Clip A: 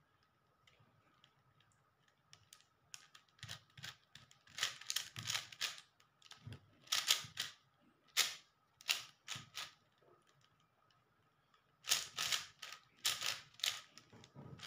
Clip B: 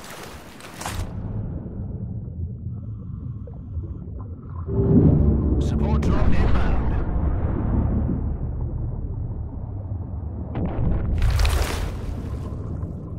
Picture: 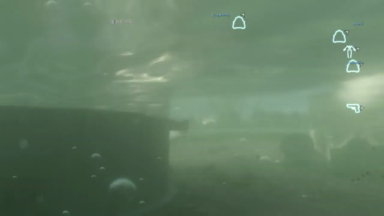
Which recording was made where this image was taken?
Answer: B